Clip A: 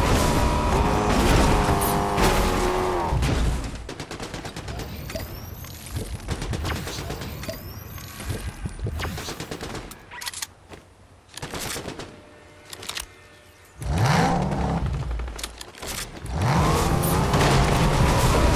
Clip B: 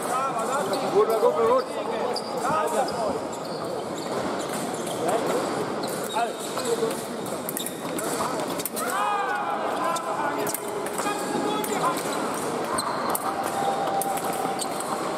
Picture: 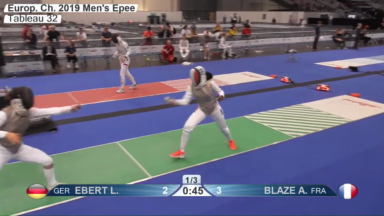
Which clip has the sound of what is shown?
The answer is B